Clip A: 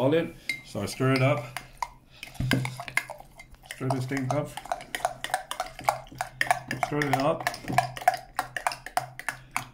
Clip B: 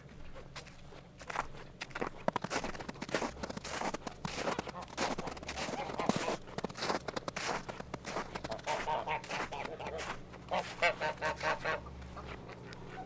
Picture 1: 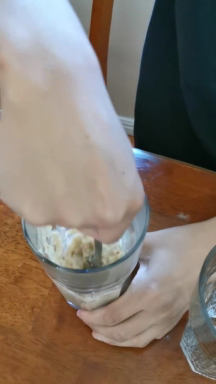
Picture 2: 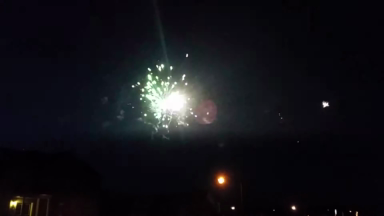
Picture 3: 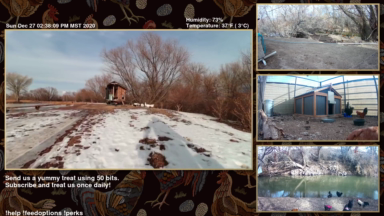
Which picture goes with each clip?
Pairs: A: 1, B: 3